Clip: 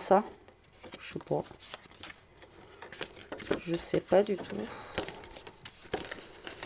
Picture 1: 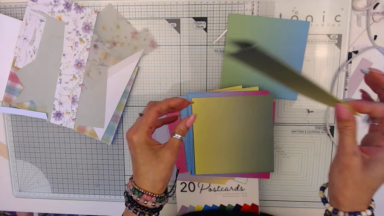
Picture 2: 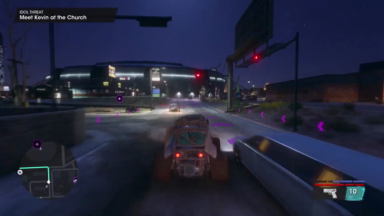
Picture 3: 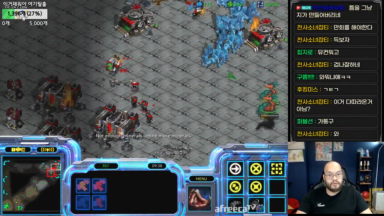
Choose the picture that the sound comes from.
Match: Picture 1